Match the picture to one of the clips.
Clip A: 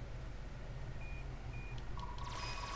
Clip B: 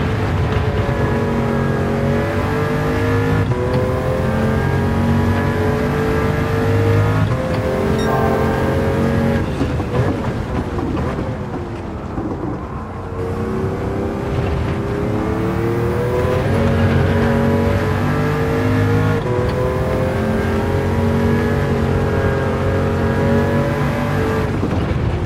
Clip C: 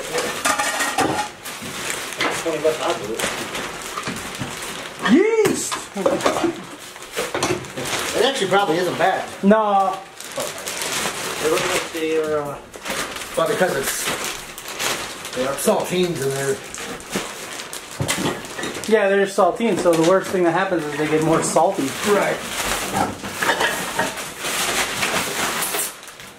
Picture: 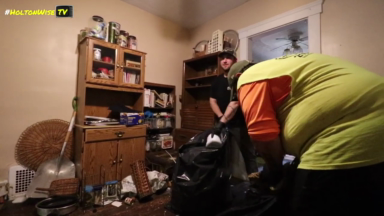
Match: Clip C